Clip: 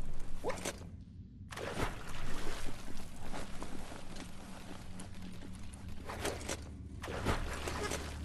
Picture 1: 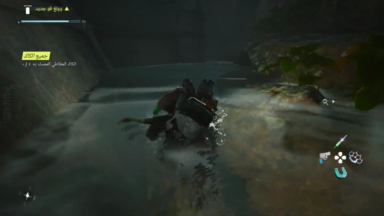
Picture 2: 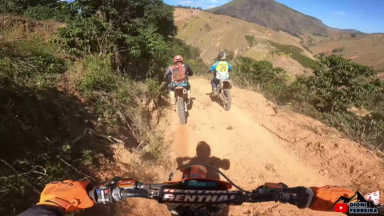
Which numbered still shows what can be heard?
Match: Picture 1